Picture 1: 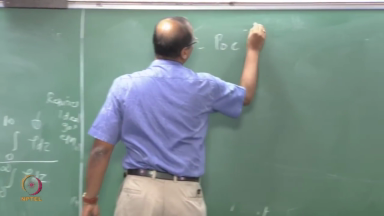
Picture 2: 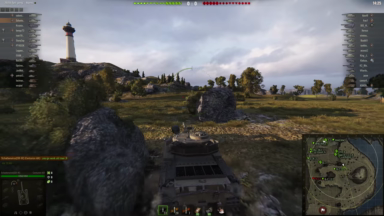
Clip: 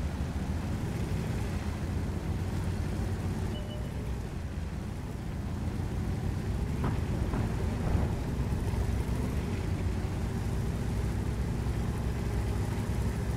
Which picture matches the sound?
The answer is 2